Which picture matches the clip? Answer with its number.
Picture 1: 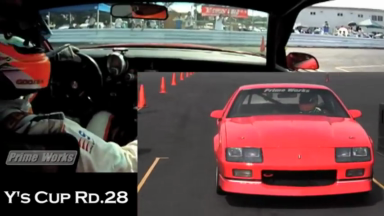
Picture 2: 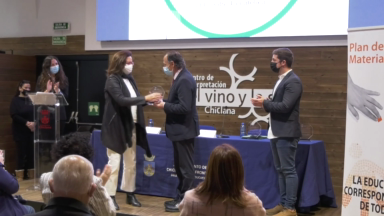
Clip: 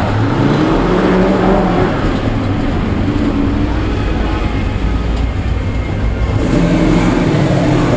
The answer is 1